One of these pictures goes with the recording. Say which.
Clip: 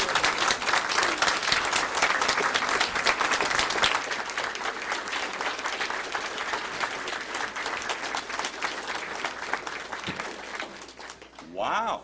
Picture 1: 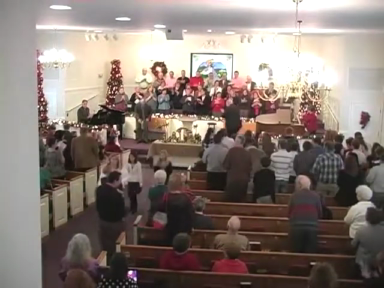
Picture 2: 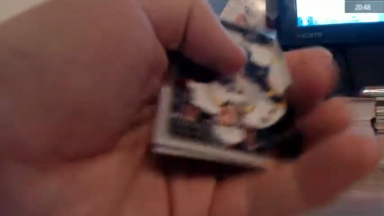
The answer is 1